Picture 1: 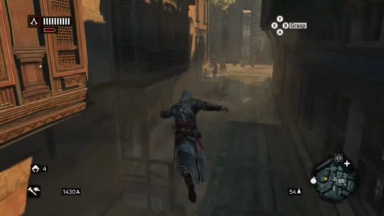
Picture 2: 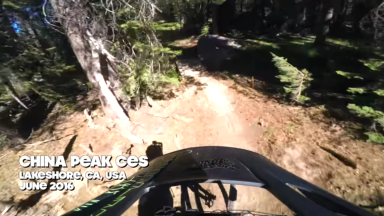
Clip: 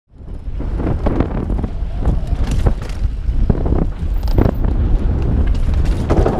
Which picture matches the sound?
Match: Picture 2